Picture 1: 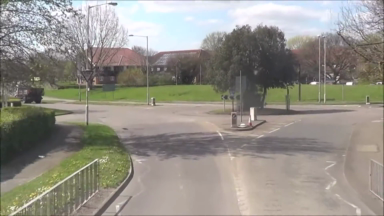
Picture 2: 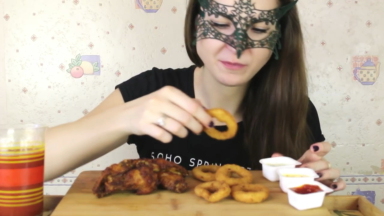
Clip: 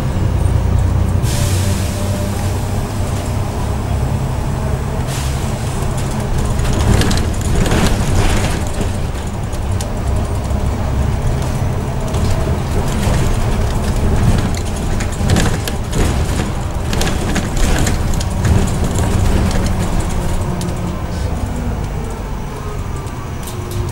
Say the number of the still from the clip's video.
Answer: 1